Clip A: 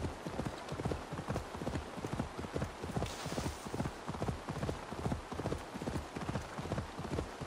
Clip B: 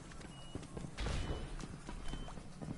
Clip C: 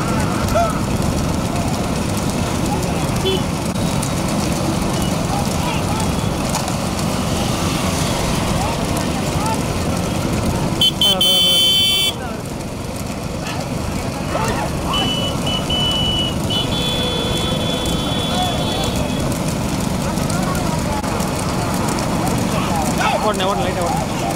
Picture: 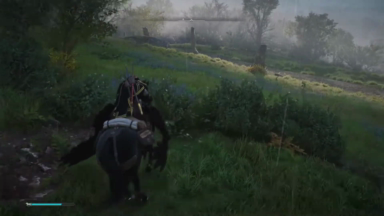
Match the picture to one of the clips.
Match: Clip A